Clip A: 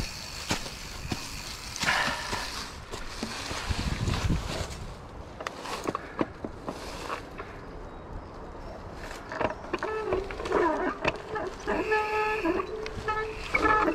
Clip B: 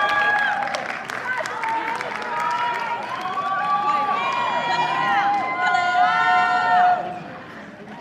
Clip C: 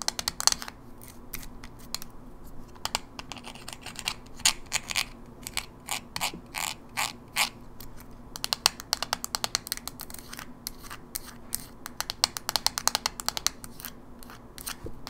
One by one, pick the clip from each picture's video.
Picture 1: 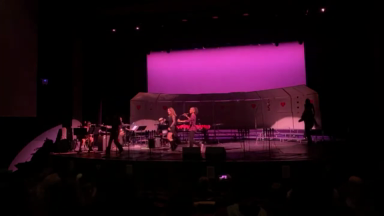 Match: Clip B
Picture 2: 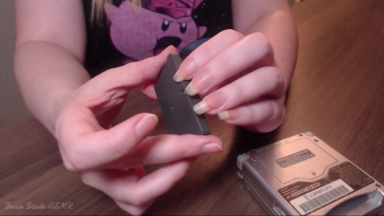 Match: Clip C